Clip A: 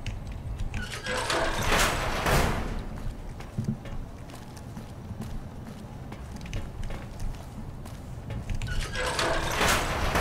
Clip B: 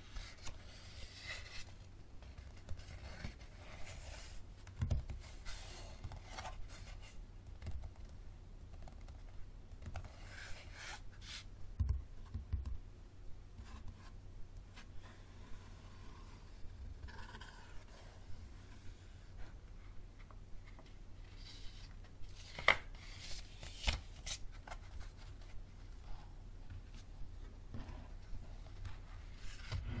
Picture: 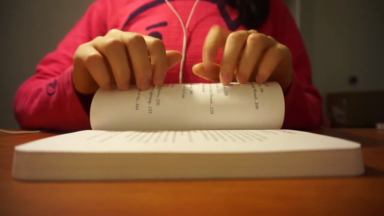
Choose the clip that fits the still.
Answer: B